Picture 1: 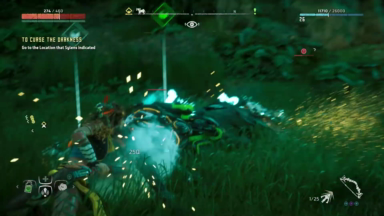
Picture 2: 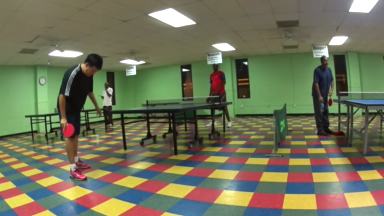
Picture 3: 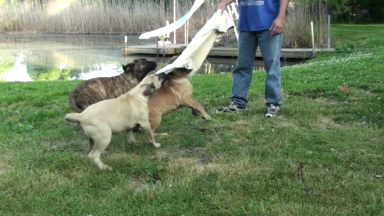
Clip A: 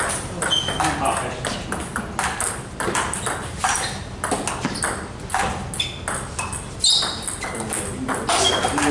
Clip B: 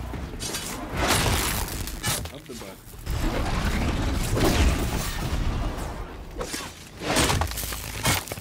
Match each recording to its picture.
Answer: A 2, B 1